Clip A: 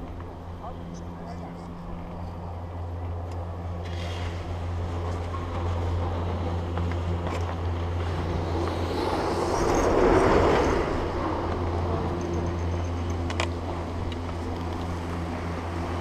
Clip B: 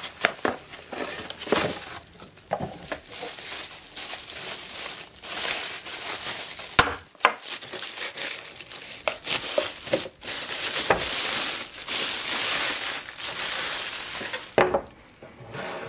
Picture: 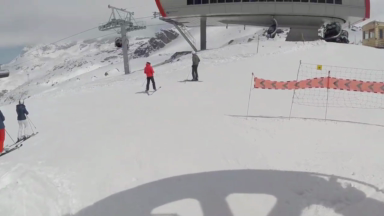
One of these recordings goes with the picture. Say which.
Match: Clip A